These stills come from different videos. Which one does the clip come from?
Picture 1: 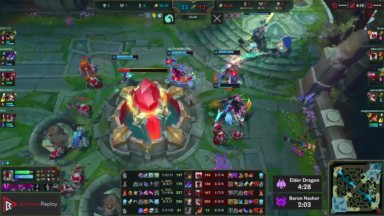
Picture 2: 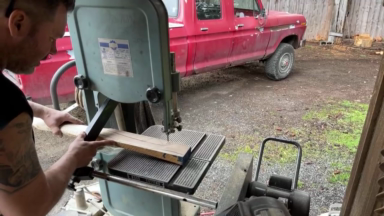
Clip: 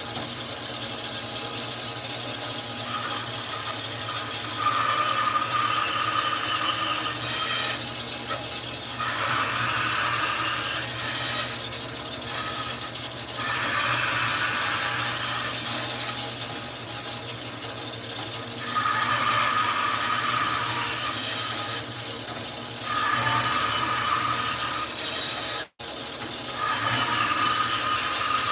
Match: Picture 2